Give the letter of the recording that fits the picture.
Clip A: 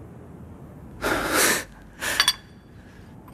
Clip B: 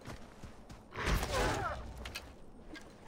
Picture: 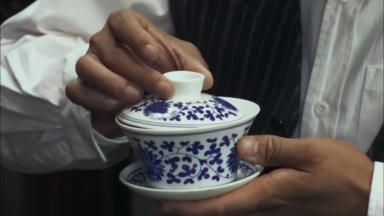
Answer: A